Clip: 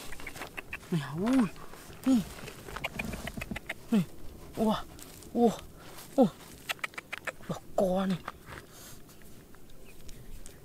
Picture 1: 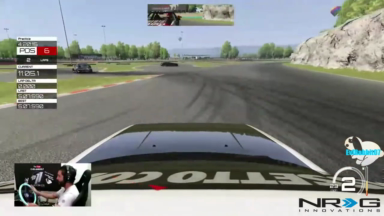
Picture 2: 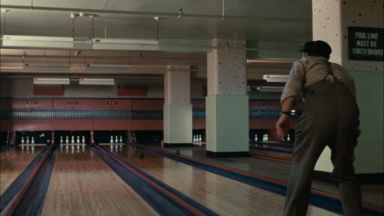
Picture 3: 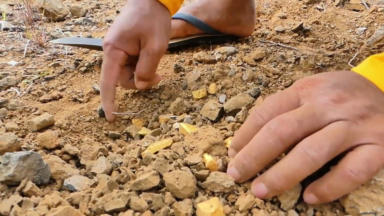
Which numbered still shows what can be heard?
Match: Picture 3